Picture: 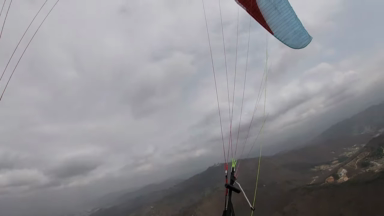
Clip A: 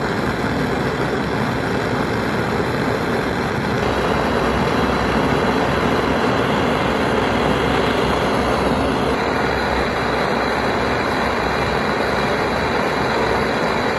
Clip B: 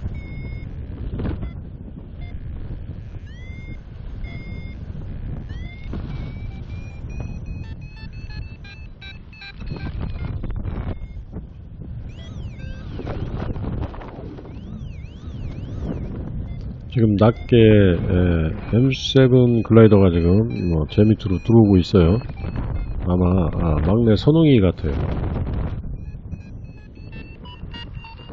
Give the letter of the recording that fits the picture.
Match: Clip B